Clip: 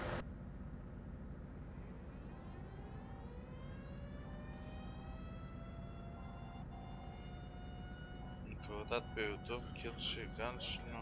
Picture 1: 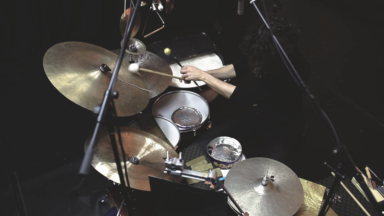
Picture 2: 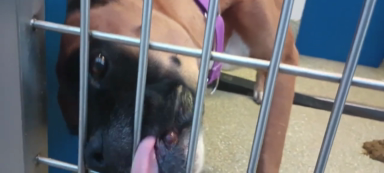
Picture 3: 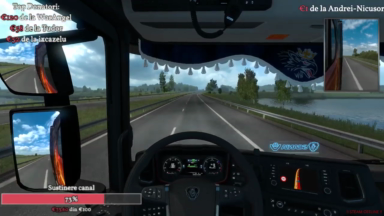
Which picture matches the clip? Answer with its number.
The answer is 3